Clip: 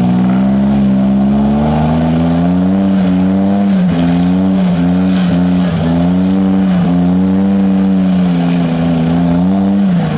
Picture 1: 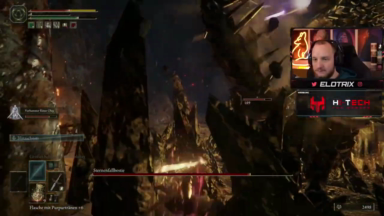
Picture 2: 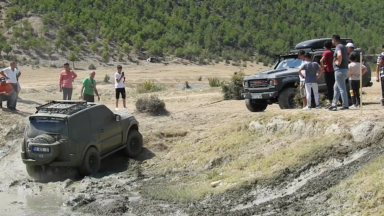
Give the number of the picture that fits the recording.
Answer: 2